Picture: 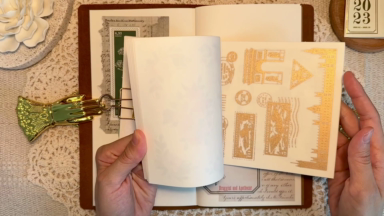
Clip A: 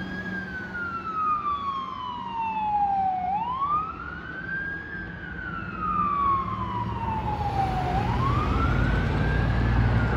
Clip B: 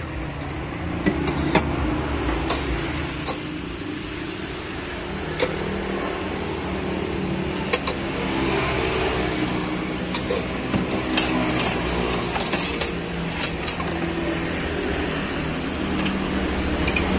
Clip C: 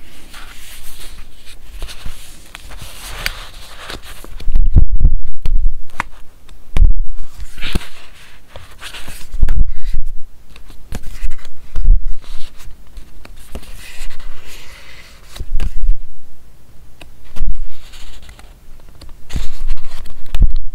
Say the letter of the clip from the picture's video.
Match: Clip C